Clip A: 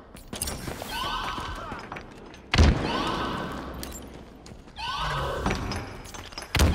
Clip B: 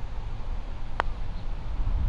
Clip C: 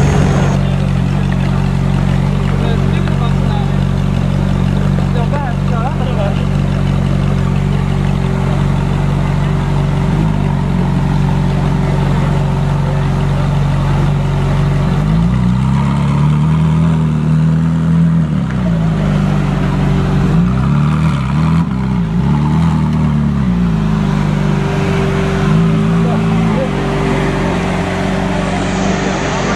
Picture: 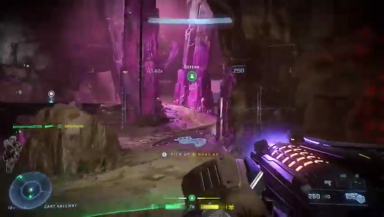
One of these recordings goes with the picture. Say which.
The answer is A